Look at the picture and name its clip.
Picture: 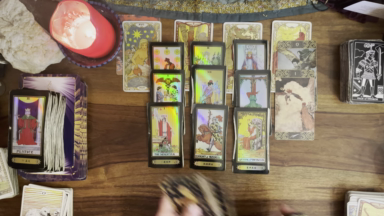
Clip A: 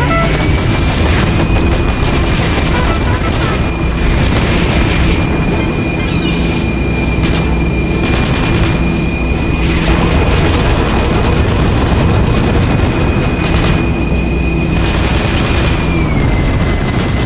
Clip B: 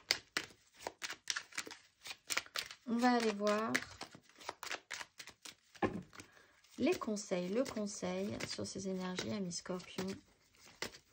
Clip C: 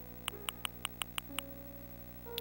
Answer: B